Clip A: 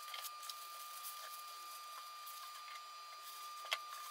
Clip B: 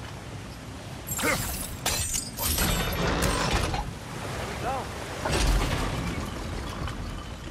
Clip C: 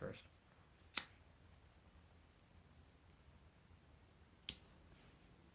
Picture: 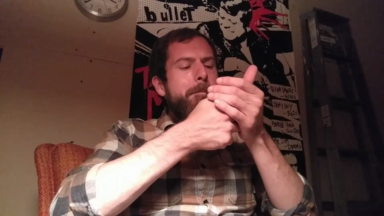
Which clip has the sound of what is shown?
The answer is C